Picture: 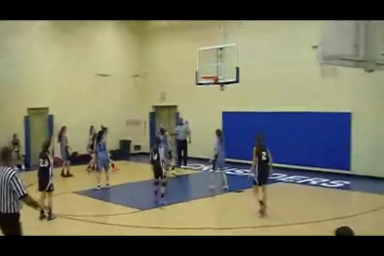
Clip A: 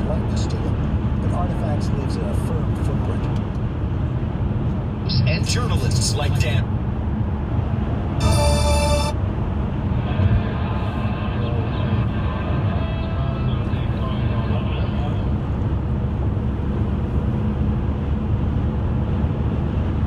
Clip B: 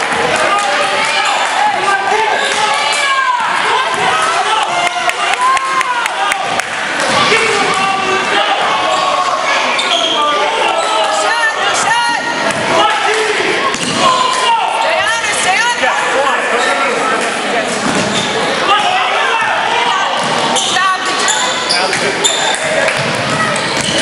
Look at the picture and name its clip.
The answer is B